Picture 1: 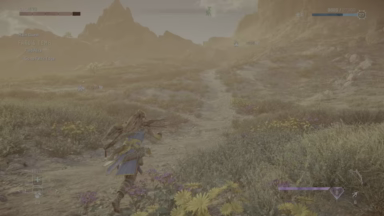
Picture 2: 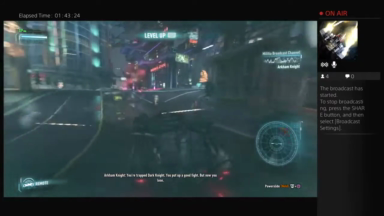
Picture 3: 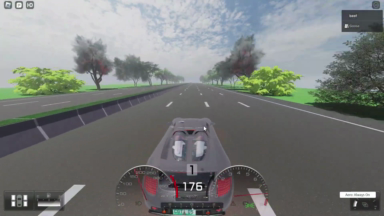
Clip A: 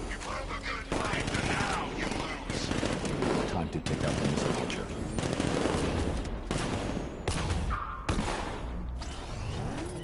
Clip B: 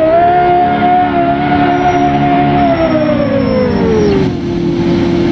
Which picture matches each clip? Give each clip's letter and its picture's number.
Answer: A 2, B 3